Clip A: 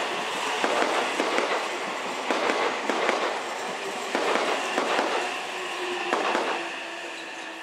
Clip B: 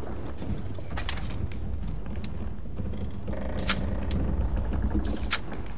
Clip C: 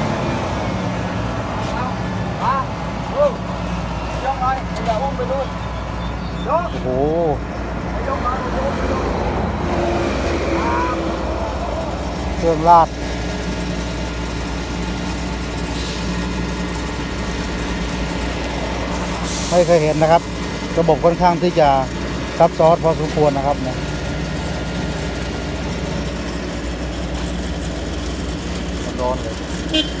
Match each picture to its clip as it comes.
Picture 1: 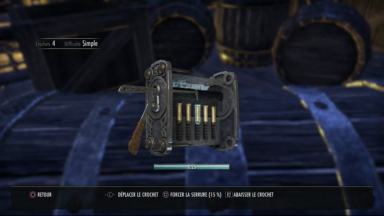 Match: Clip B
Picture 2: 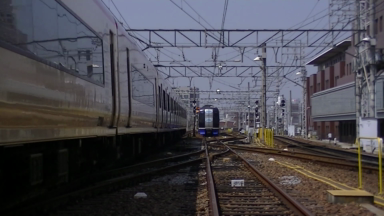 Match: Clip A